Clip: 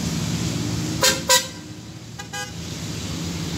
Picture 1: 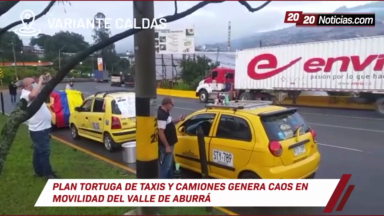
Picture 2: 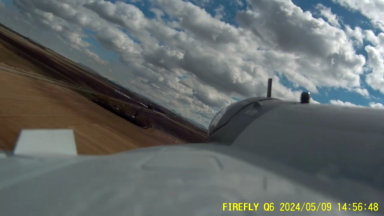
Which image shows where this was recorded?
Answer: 1